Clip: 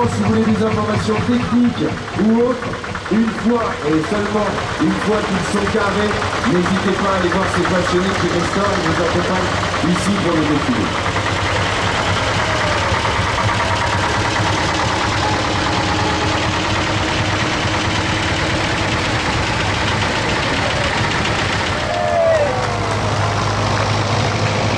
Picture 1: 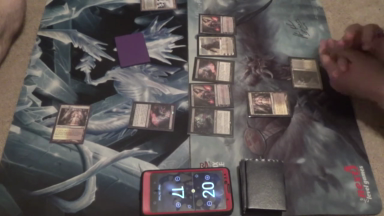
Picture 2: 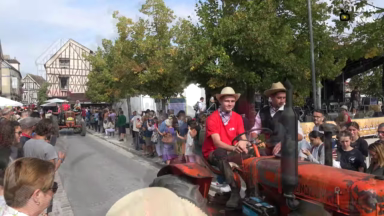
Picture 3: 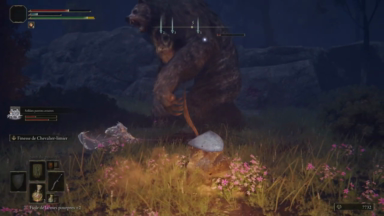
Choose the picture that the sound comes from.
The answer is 2